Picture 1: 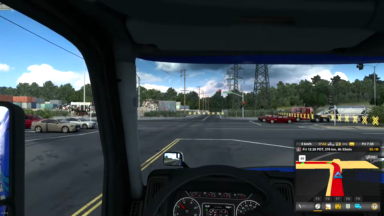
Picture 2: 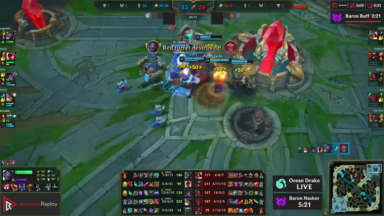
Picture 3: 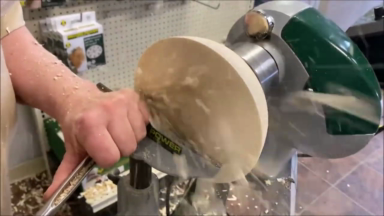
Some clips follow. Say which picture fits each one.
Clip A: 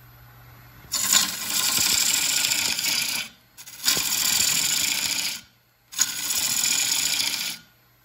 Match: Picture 3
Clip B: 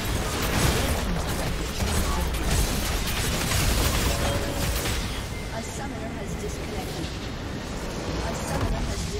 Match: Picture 2